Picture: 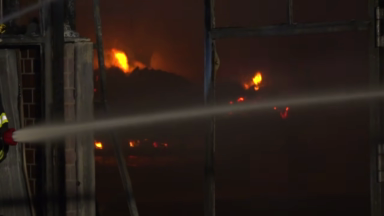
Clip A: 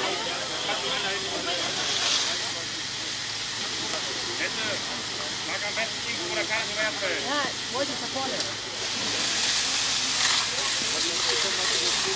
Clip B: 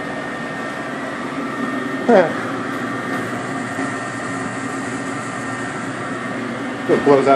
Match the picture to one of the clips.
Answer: A